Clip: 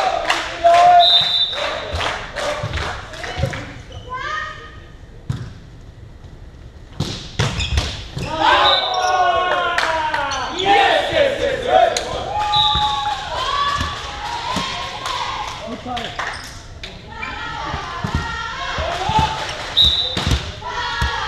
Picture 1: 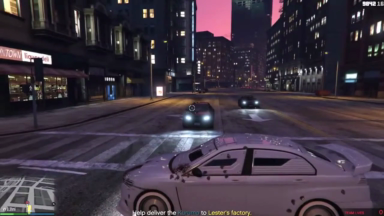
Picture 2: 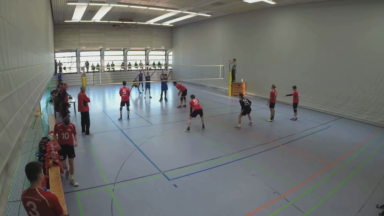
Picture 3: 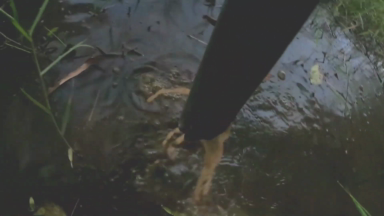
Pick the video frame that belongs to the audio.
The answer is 2